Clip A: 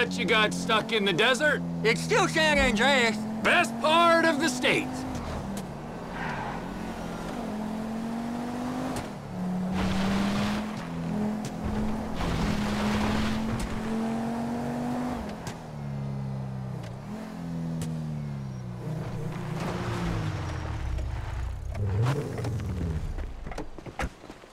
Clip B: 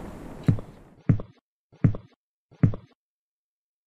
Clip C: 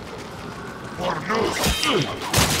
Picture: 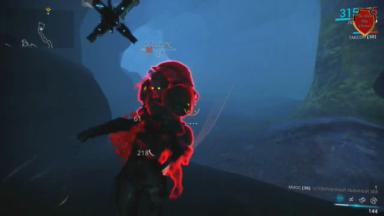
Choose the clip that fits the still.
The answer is C